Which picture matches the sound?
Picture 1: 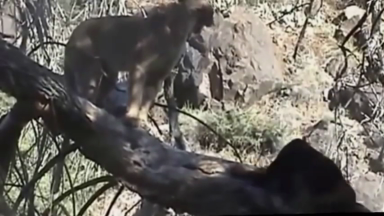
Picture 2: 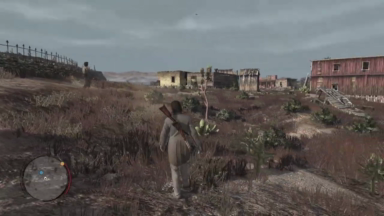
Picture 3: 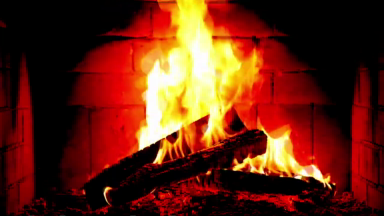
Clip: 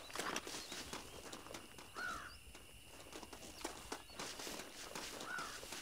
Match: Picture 2